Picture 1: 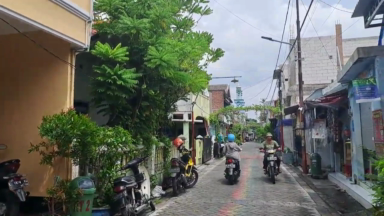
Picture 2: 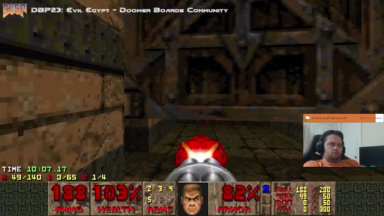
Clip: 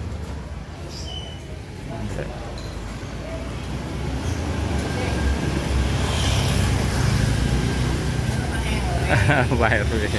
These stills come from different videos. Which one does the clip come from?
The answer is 1